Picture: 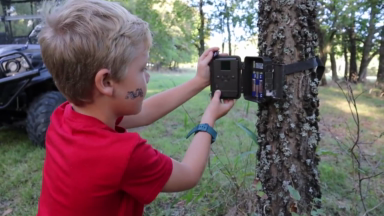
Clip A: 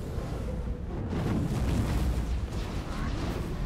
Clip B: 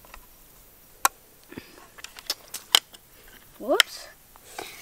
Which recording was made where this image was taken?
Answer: B